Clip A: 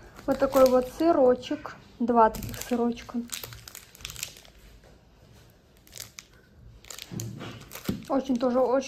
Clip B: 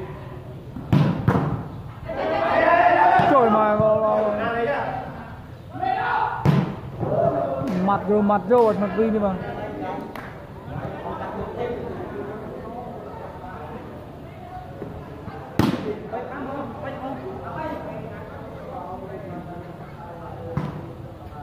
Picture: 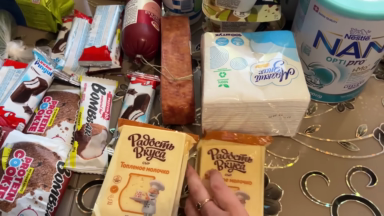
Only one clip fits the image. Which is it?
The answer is A